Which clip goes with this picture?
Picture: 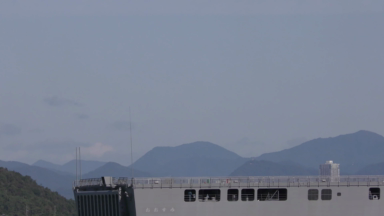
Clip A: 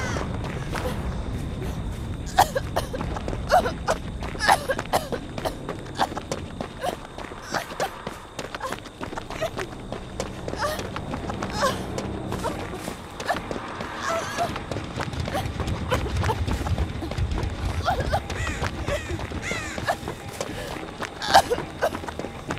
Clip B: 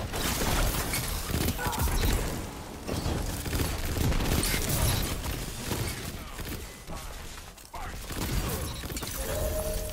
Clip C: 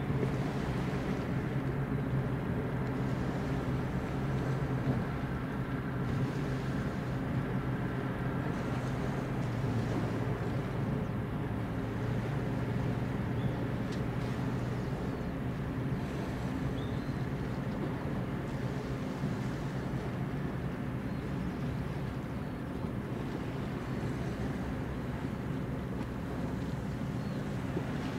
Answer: C